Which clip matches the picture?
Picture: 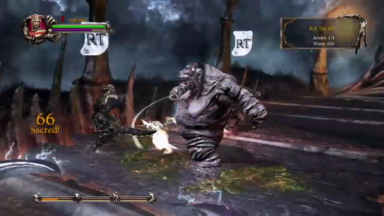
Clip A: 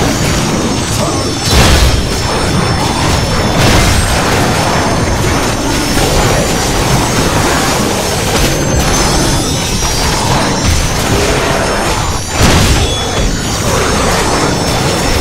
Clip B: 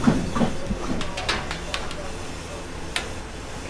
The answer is A